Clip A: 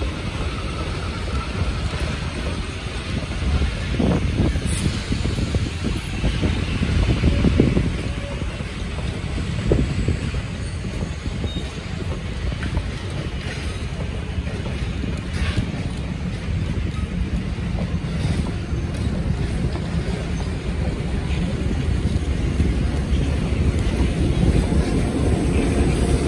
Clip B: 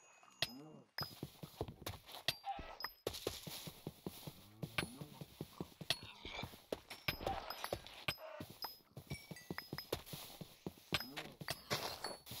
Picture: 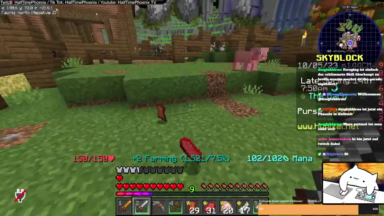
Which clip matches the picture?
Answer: B